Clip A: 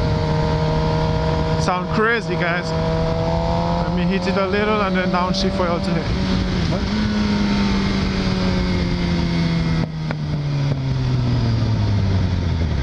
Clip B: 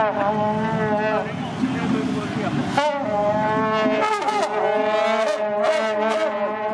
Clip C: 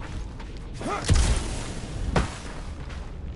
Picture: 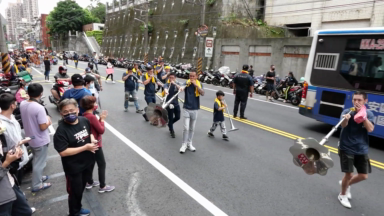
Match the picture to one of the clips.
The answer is B